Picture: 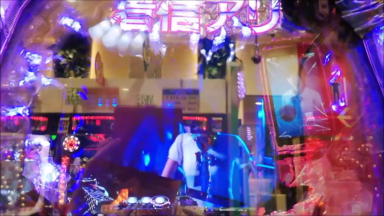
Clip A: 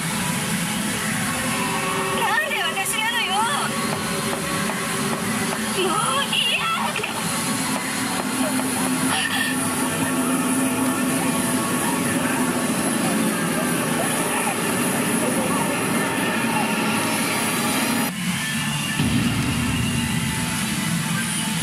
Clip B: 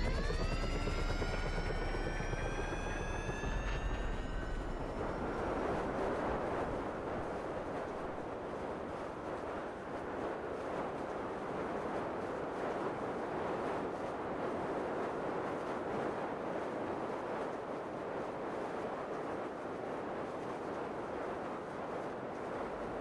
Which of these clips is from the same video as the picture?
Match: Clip A